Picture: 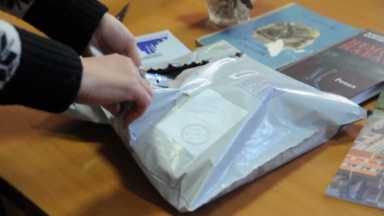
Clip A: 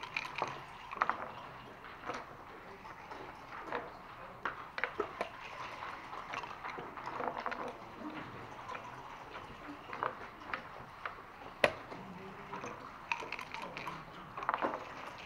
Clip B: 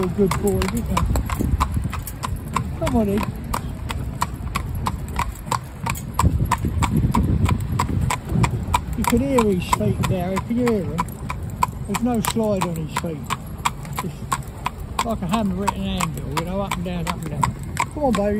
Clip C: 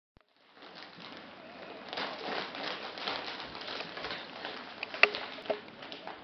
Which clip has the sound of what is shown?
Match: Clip C